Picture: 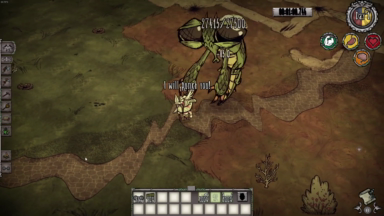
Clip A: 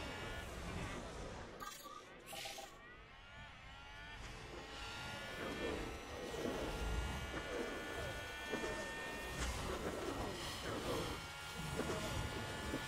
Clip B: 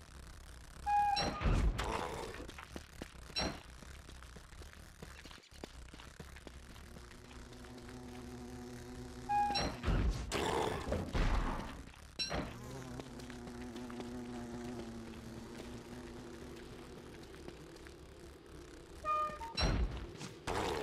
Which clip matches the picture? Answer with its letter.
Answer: B